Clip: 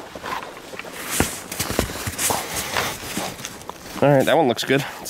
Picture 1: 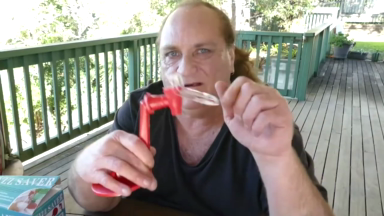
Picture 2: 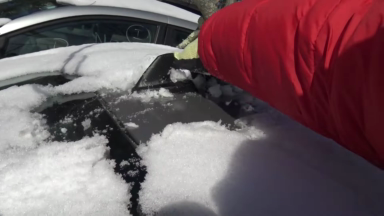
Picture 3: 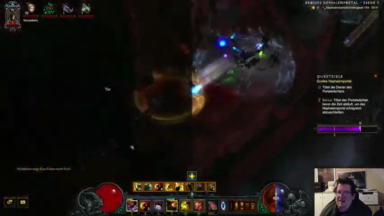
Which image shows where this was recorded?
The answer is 2